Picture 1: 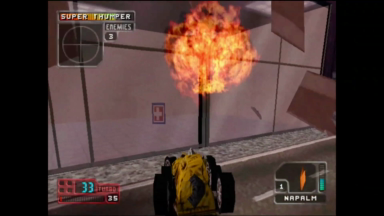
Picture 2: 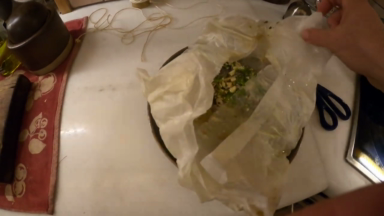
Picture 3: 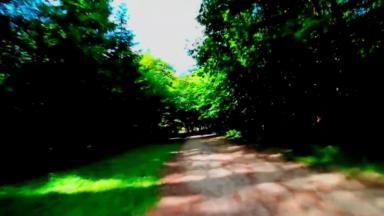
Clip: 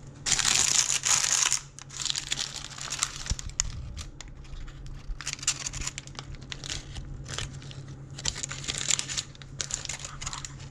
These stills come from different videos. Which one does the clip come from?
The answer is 2